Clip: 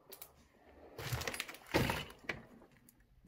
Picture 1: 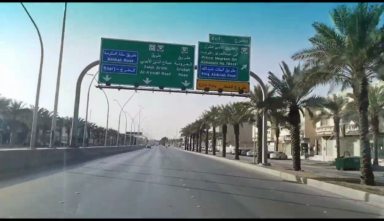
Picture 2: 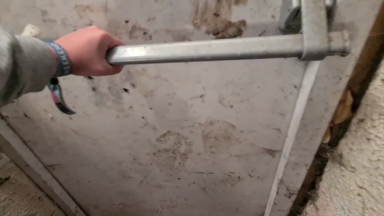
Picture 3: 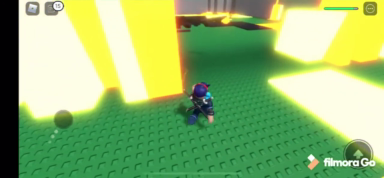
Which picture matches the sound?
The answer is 2